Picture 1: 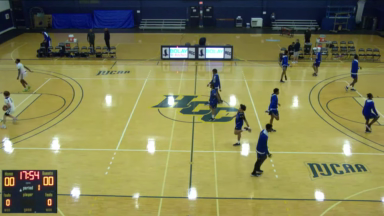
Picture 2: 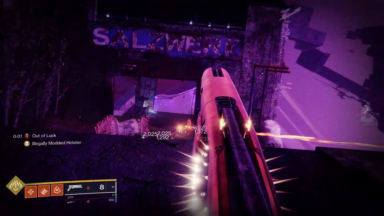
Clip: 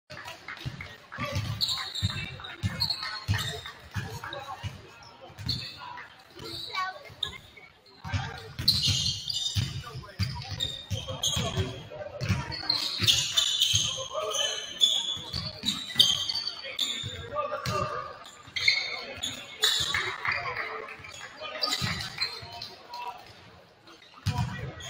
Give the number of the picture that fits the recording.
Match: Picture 1